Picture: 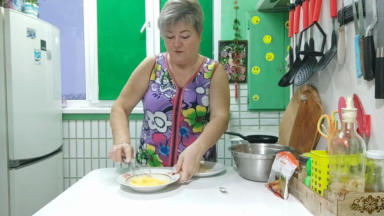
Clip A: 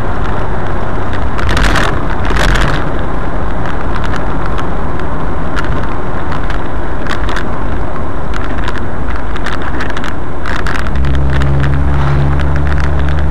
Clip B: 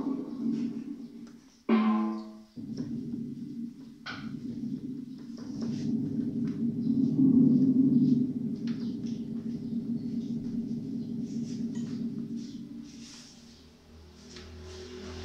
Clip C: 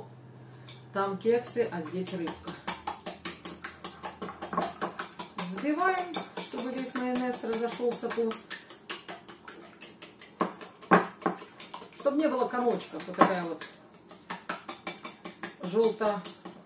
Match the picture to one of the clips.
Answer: C